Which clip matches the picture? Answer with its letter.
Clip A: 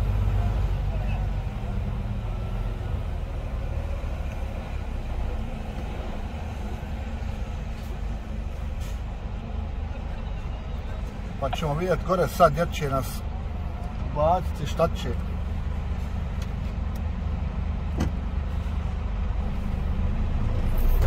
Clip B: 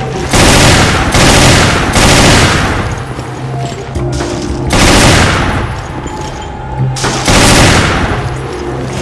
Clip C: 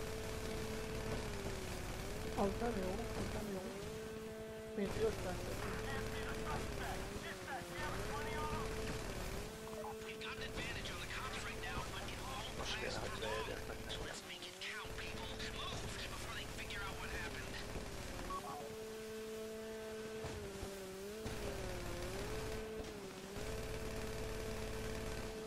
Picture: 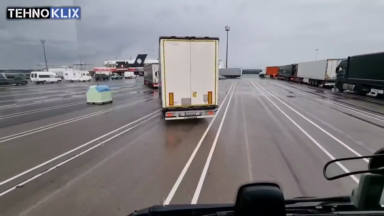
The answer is A